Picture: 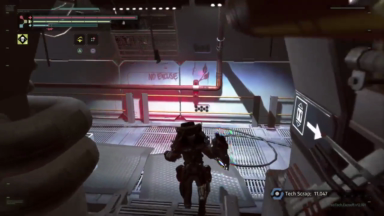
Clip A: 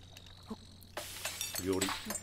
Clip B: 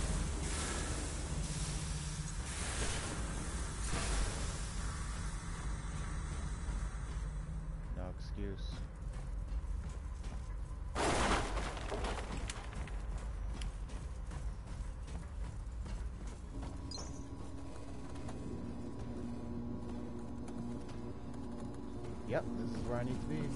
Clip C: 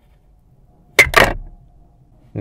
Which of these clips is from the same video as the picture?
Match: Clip B